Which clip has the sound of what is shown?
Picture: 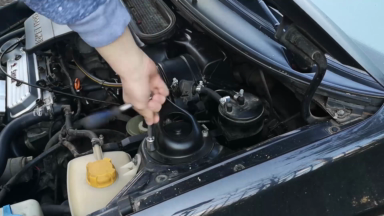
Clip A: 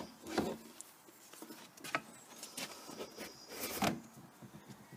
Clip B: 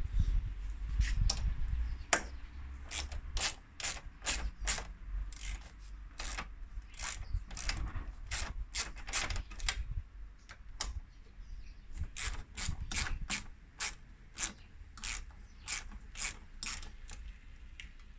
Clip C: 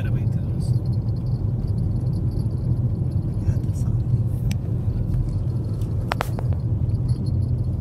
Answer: B